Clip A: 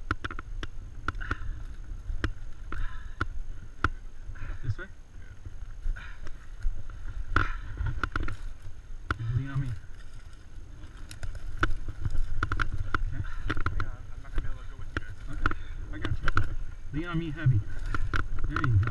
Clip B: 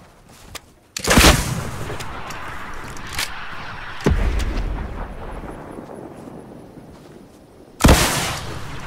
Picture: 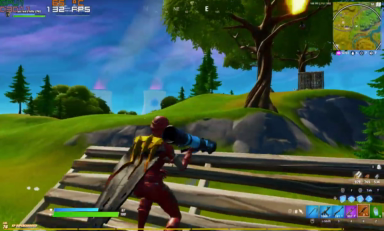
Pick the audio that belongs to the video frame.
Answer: B